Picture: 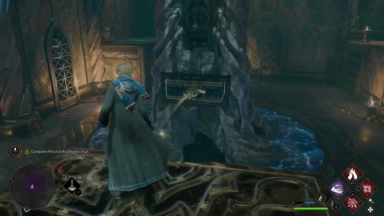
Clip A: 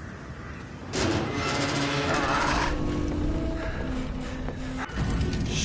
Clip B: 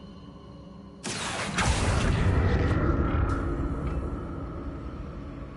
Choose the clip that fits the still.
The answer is B